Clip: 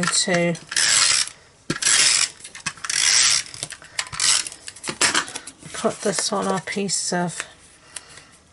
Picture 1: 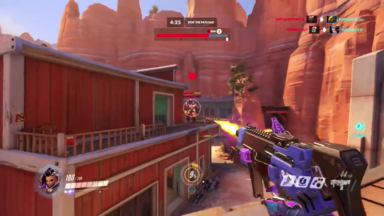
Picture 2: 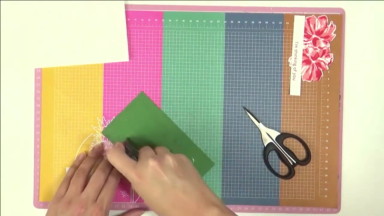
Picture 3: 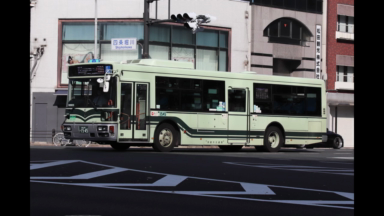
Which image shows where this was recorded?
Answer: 2